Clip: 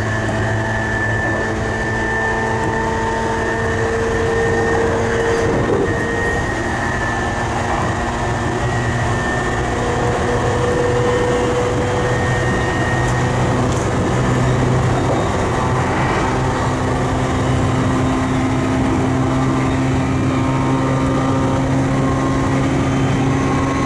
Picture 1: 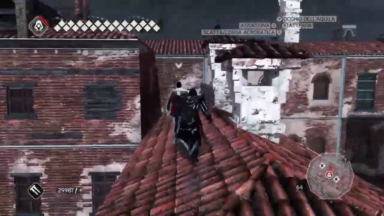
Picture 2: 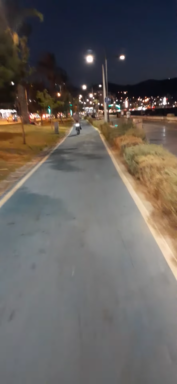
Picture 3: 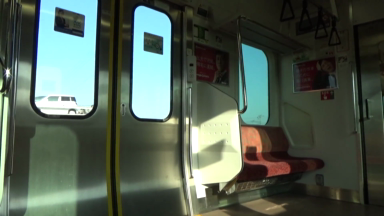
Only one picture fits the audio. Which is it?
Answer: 3